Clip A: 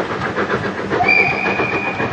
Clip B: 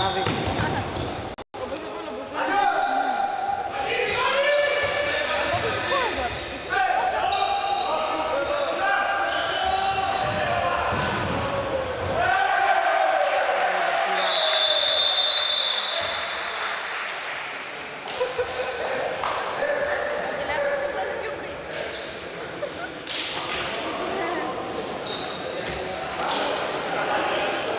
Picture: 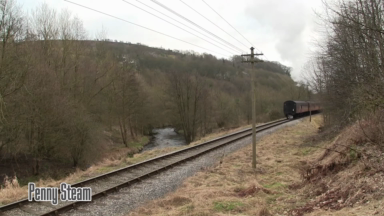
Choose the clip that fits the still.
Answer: A